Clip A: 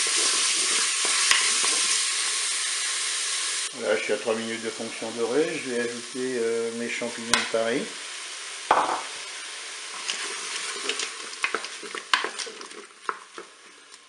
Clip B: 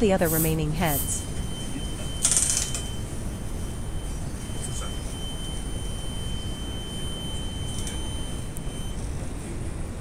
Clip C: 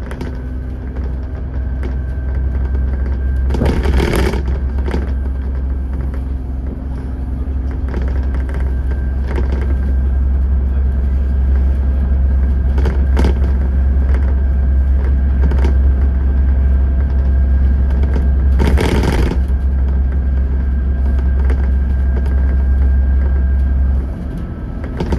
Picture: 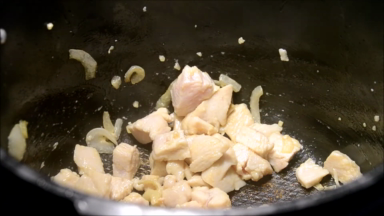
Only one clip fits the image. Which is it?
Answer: A